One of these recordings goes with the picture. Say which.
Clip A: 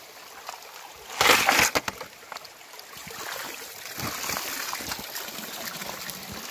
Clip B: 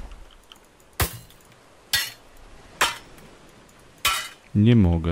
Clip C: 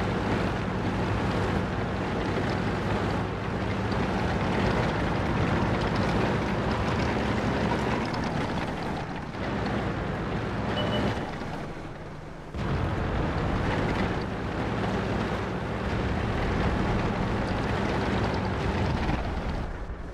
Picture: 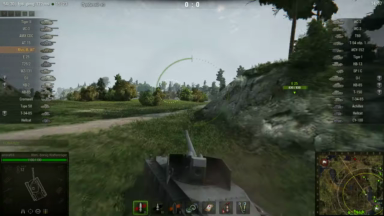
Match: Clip C